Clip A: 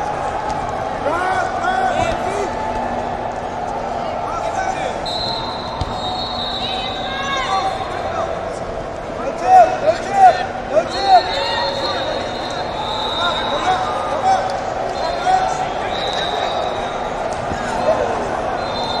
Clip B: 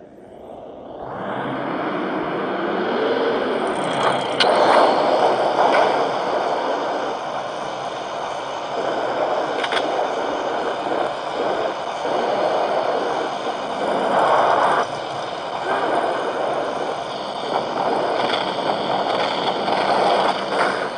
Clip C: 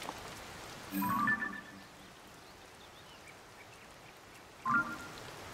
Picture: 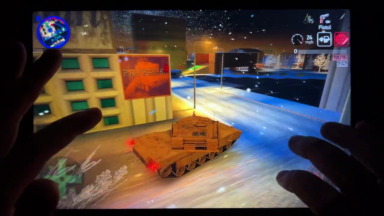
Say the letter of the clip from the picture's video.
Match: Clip B